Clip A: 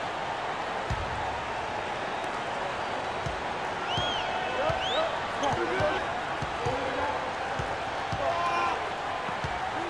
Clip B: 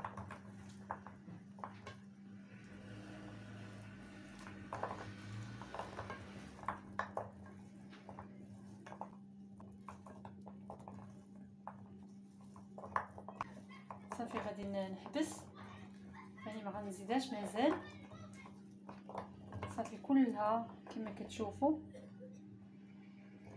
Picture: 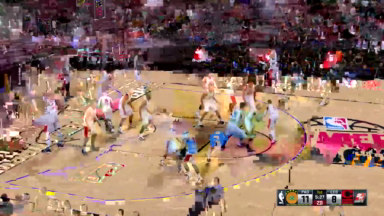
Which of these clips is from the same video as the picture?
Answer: A